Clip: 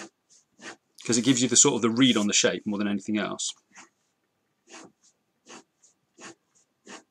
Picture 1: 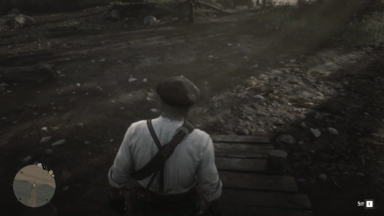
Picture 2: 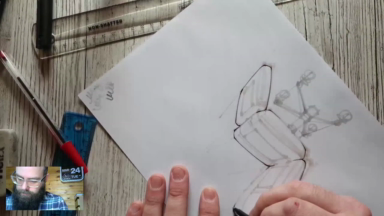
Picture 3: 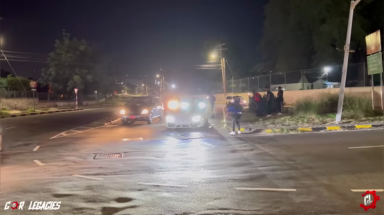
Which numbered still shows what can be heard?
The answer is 2